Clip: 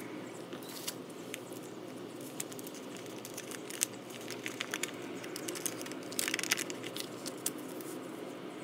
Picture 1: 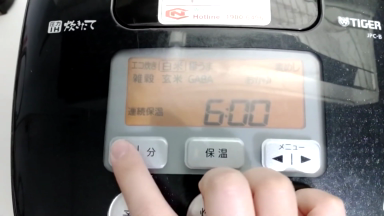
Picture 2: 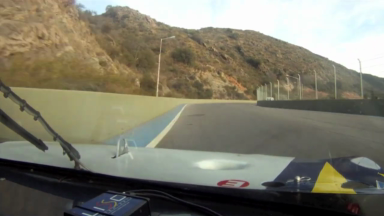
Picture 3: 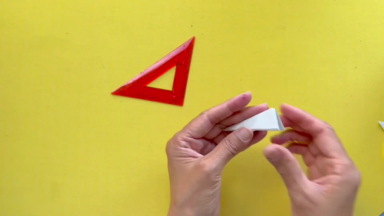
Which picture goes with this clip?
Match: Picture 3